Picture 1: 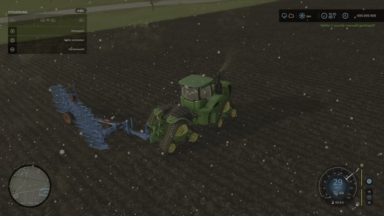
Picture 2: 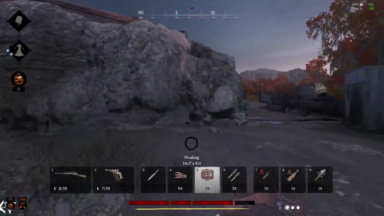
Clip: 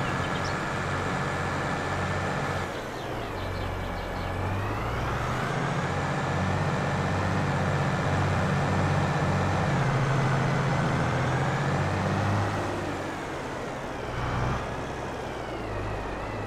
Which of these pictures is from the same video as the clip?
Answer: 1